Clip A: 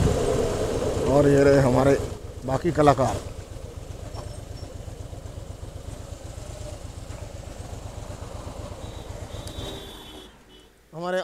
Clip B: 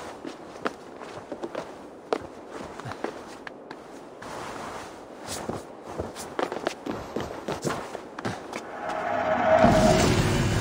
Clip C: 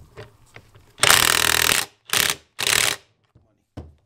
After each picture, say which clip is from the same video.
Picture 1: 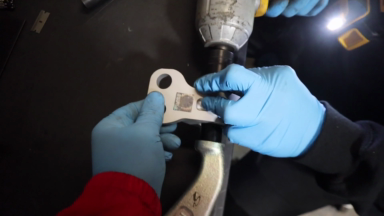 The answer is C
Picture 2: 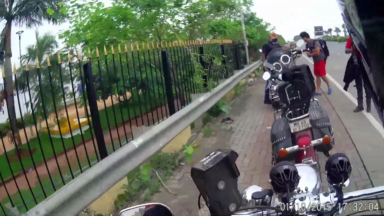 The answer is A